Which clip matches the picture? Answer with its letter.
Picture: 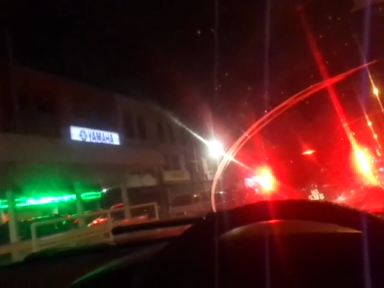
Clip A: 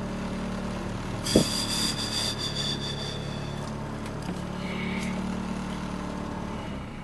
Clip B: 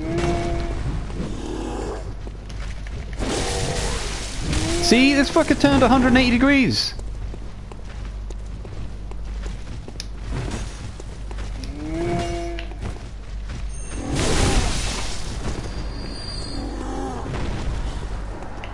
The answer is A